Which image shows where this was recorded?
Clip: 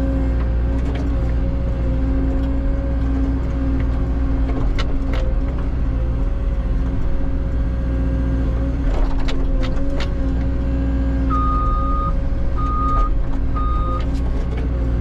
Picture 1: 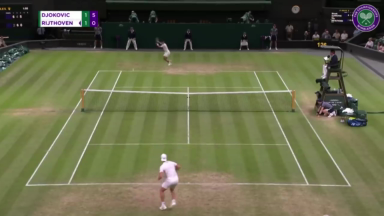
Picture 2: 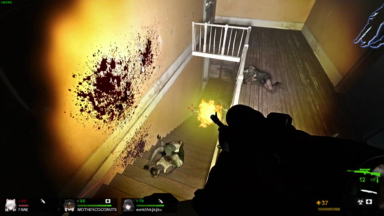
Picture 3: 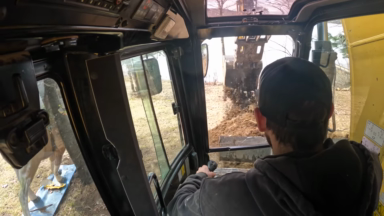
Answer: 3